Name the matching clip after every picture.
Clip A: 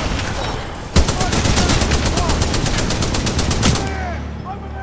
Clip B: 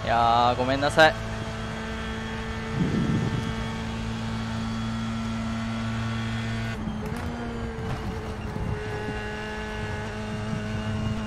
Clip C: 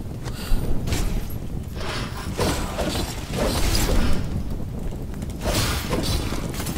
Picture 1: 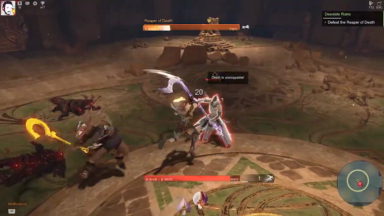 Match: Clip C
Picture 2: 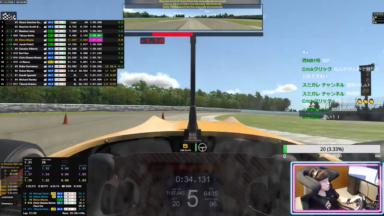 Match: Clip B